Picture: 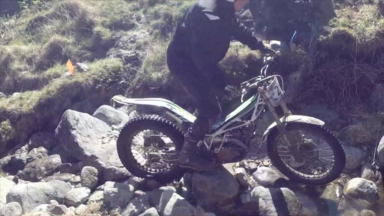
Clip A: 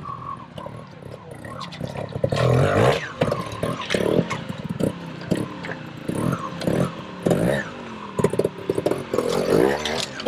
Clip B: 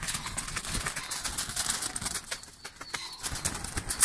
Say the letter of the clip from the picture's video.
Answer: A